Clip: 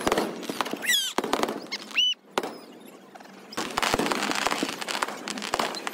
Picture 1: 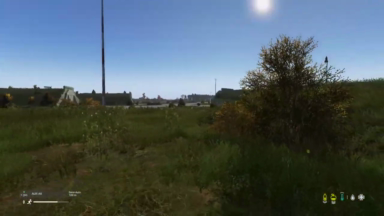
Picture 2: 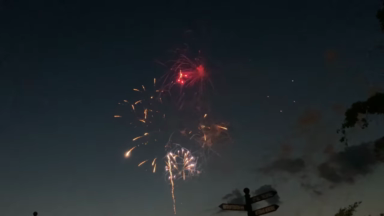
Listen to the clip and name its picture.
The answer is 2